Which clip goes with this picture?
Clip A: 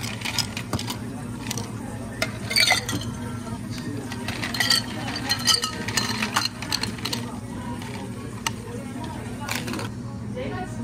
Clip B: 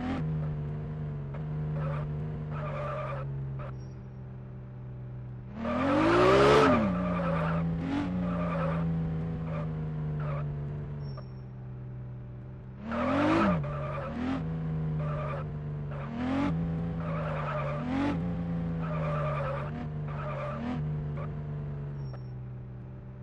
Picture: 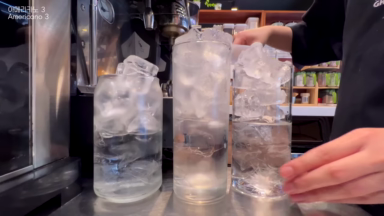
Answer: A